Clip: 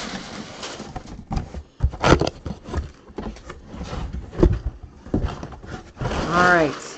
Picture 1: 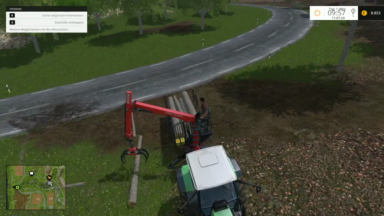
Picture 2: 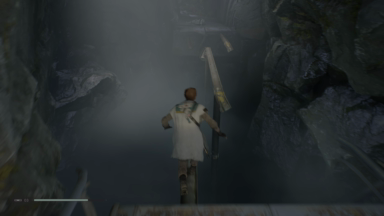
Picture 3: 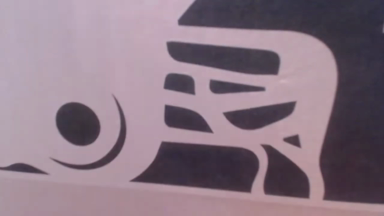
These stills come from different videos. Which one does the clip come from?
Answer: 3